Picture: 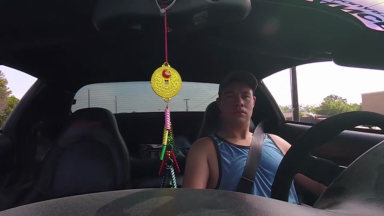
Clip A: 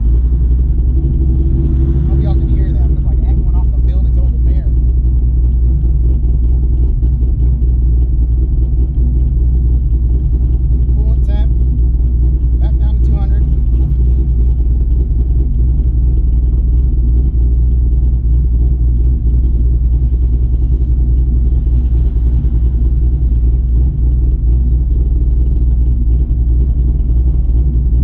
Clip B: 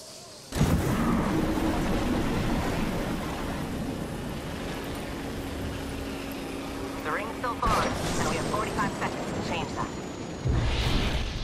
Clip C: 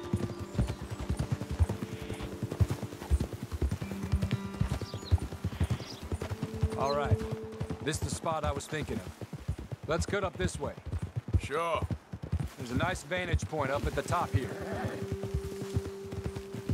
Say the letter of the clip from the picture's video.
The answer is A